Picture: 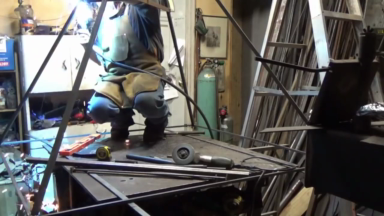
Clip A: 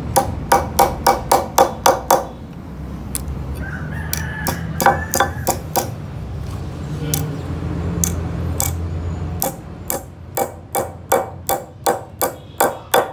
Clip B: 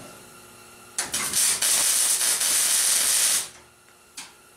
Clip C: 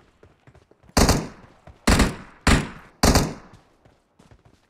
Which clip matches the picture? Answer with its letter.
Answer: B